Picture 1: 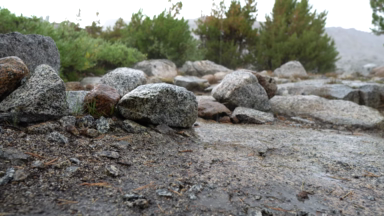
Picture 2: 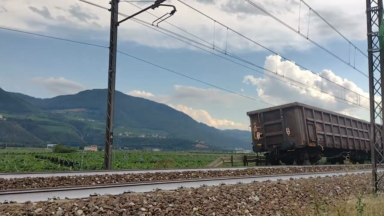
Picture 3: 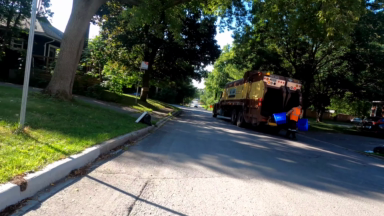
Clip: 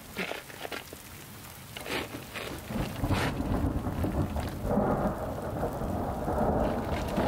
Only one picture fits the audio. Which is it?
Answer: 1